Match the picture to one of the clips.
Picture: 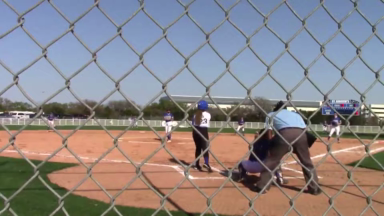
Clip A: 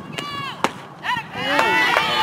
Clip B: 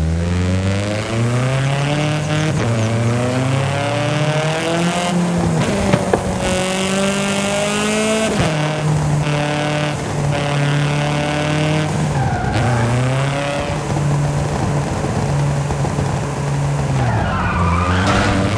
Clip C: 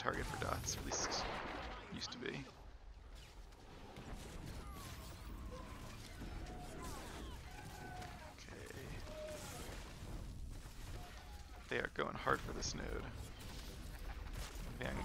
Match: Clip A